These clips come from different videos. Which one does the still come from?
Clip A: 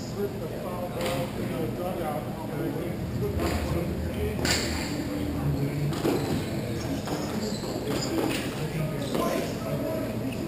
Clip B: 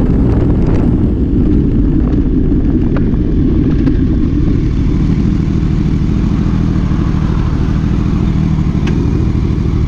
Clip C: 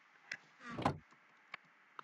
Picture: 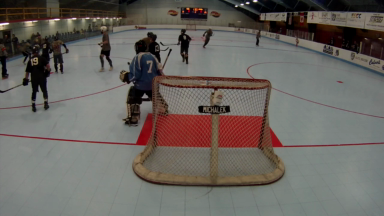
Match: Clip A